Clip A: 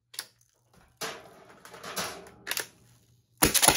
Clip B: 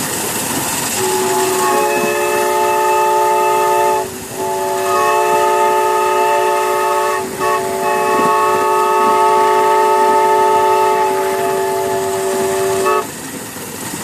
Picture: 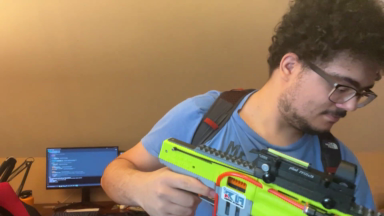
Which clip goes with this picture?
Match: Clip A